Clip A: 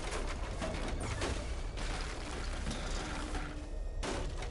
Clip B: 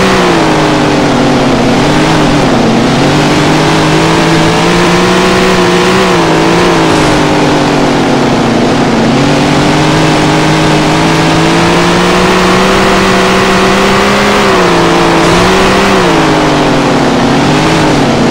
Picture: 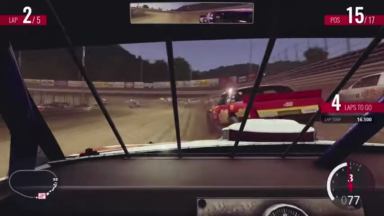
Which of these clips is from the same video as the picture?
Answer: B